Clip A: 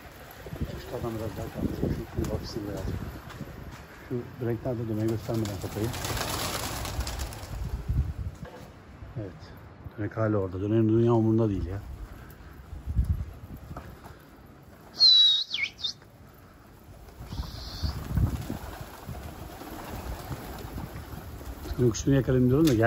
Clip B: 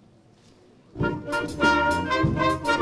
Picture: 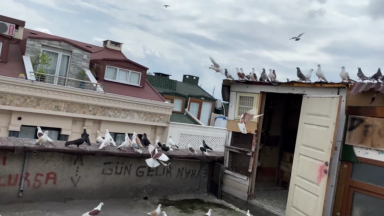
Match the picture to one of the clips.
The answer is A